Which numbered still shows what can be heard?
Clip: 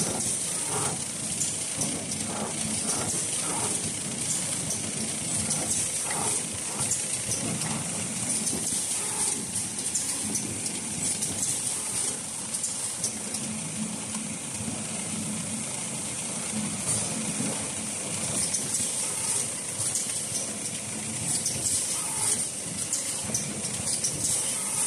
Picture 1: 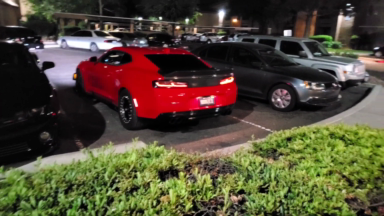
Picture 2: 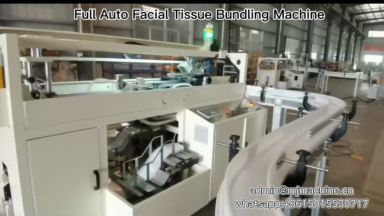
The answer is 2